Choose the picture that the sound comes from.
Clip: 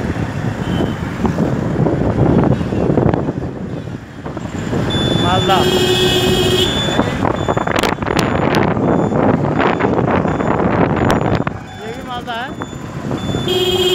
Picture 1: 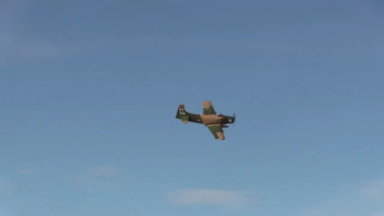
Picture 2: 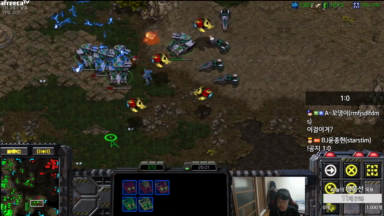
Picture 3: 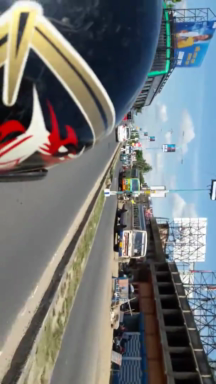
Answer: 3